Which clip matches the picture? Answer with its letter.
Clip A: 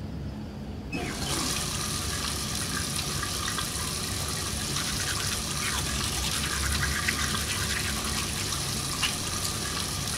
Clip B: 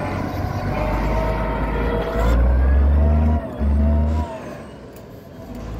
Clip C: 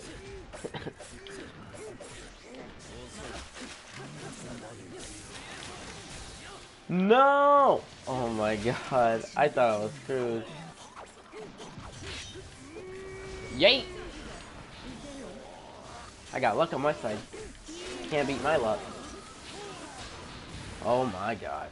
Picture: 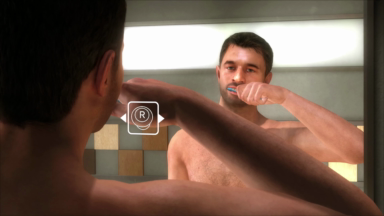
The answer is A